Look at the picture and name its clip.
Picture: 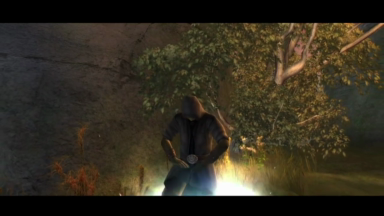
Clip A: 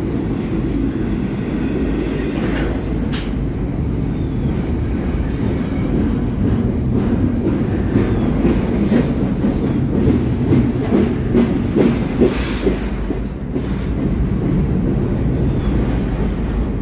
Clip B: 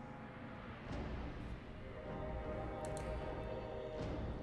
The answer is B